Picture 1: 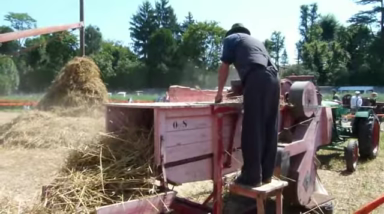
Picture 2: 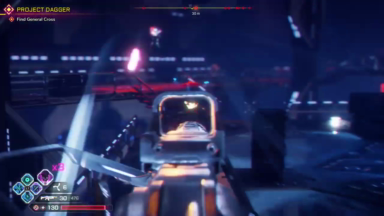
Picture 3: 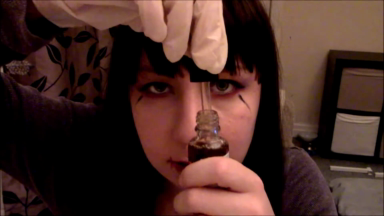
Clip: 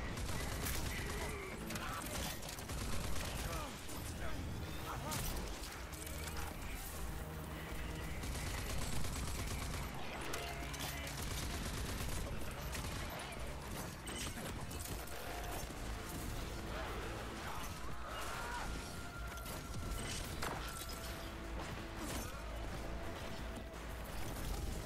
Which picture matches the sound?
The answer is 2